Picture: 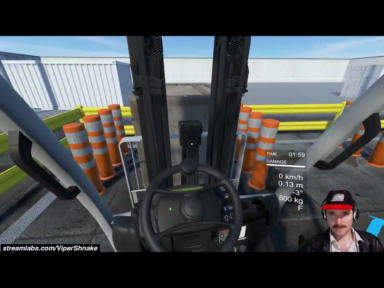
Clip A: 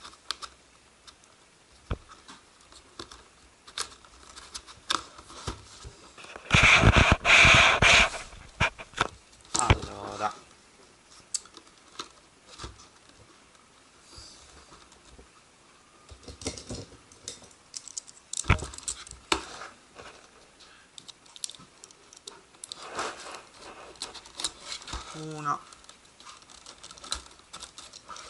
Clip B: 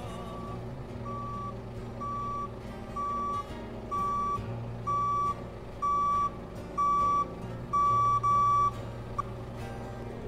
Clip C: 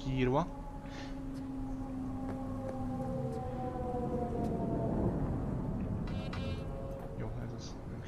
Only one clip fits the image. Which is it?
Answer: B